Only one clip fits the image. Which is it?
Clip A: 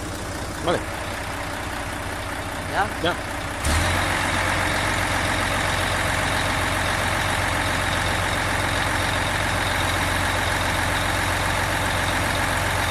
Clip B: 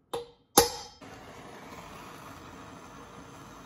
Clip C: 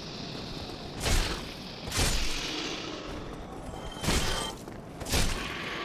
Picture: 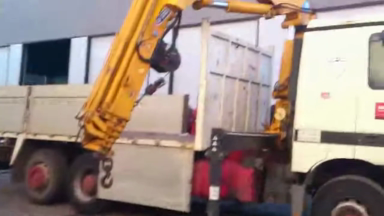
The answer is A